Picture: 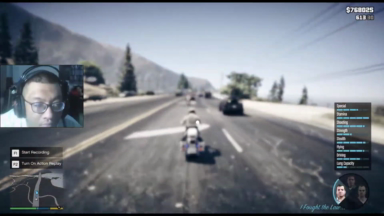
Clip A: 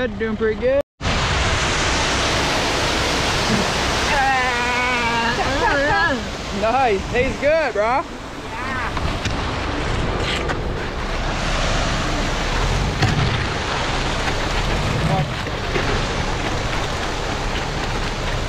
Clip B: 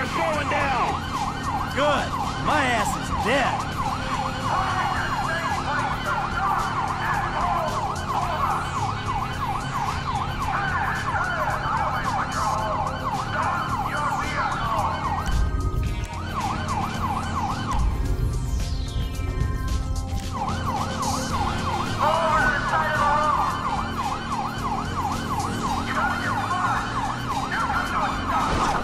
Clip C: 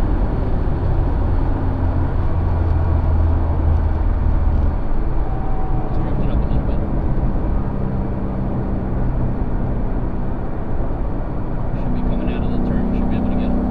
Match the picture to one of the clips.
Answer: B